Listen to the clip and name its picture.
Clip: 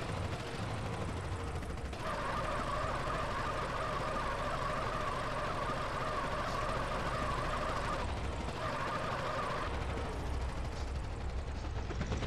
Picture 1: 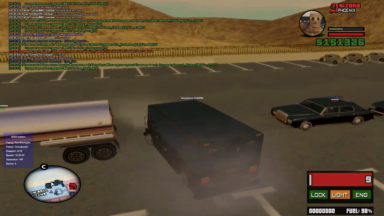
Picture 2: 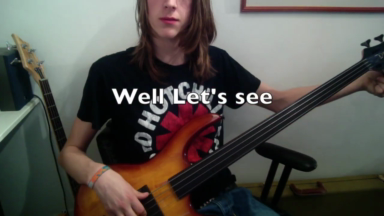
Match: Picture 1